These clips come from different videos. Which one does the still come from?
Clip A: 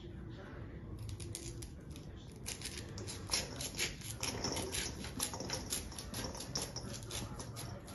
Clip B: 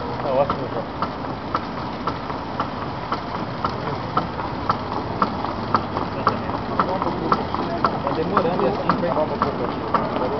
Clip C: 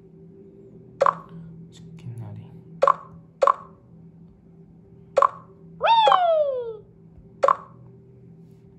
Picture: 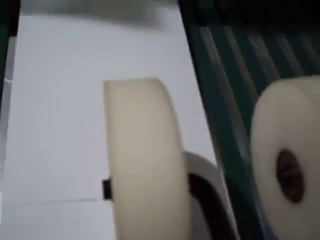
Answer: B